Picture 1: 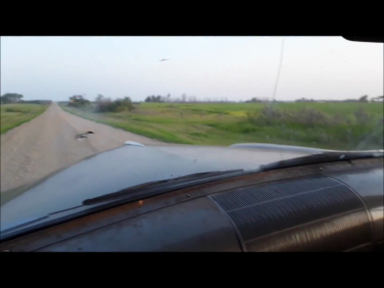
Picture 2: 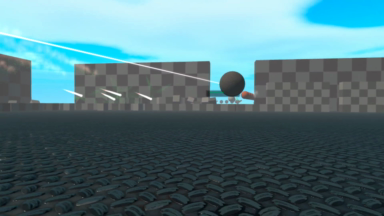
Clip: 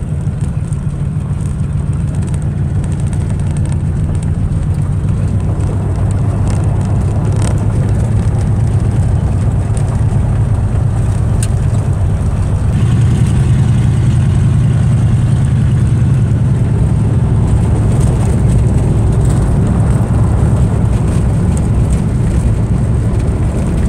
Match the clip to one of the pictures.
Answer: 1